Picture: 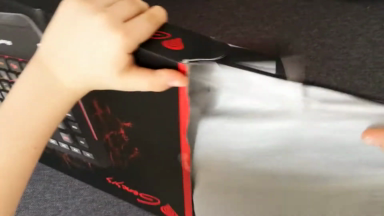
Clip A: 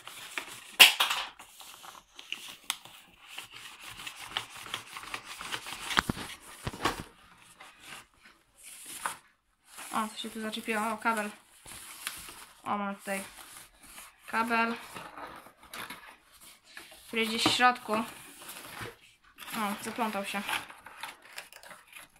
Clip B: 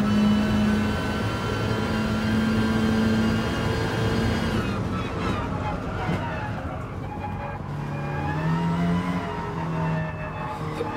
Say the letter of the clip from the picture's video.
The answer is A